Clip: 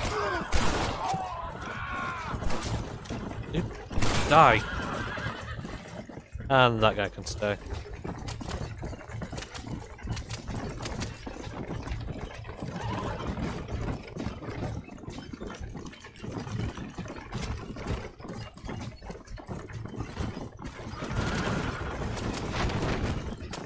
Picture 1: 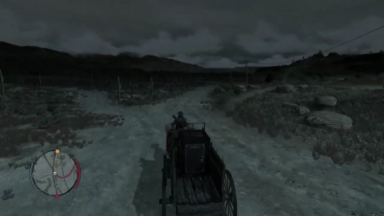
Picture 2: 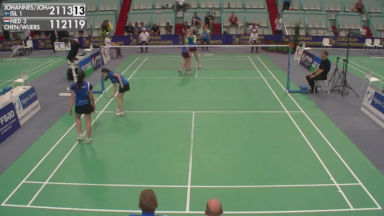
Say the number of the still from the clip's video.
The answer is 1